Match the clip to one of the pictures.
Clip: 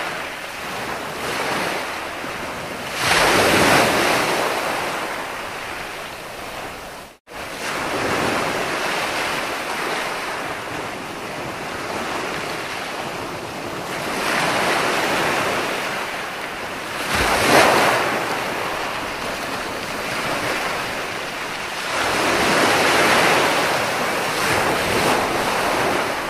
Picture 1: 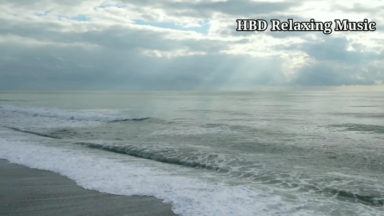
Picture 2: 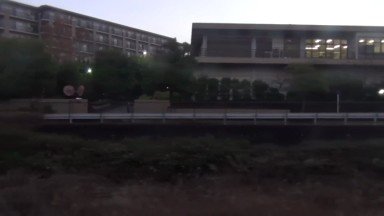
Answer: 1